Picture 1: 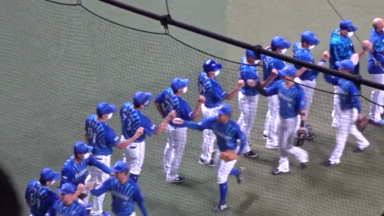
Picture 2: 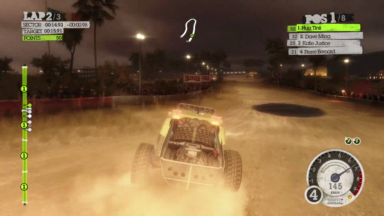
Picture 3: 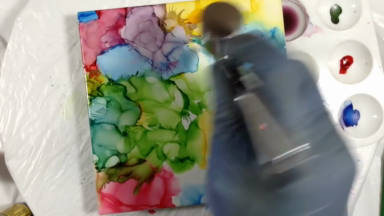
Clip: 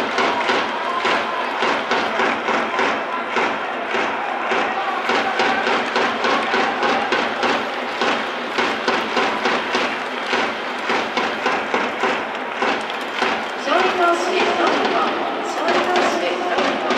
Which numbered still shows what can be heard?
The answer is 1